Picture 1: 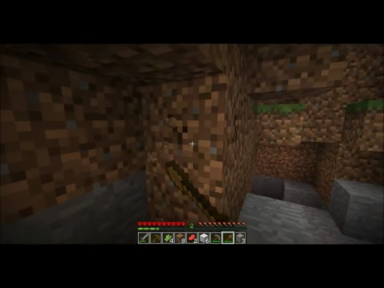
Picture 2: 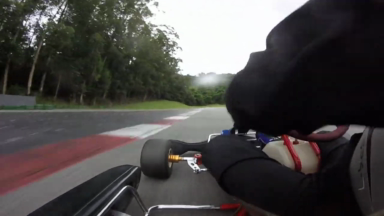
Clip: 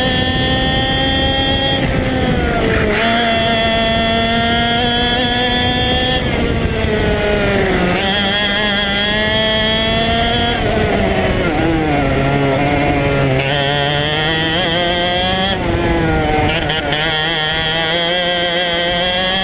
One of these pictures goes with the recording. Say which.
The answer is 2